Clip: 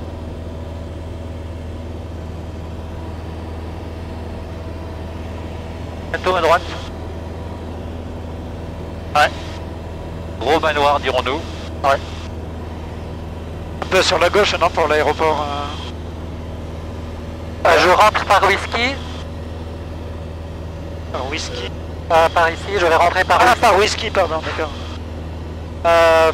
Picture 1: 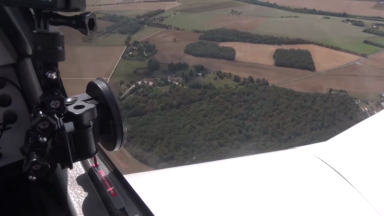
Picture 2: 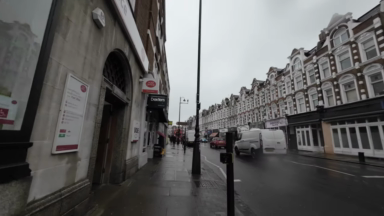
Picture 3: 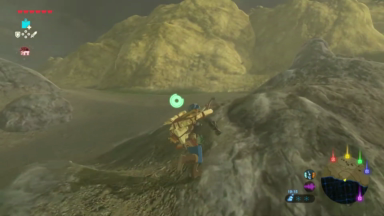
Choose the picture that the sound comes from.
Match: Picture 1